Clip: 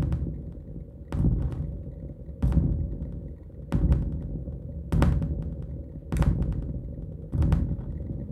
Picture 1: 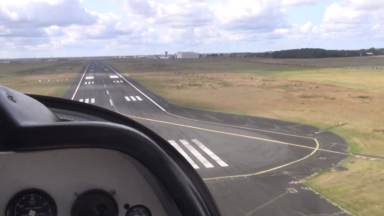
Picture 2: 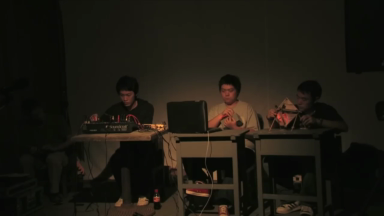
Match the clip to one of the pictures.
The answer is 2